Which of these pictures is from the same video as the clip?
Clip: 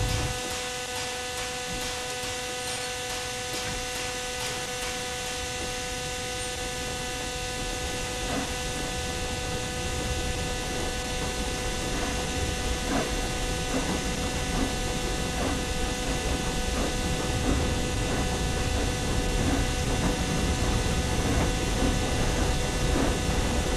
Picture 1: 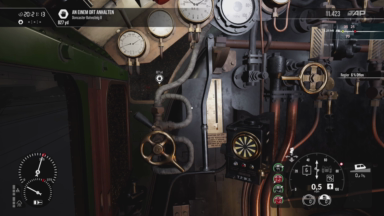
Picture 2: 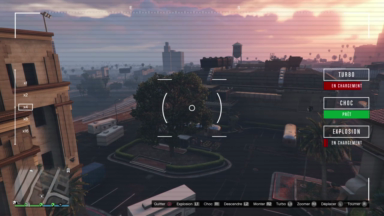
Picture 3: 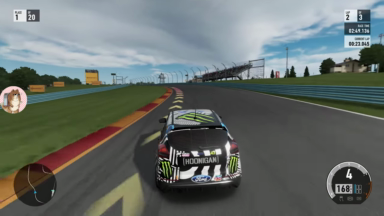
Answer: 1